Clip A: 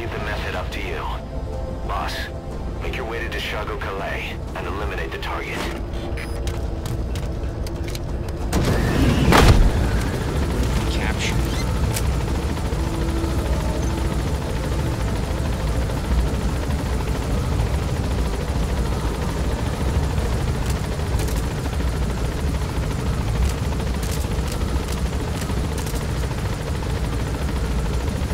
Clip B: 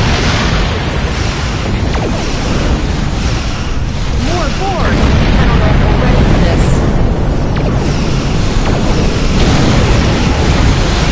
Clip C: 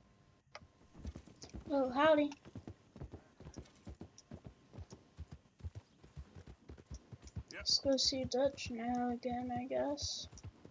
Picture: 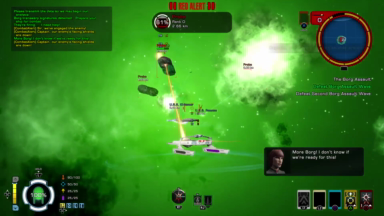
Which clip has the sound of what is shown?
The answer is B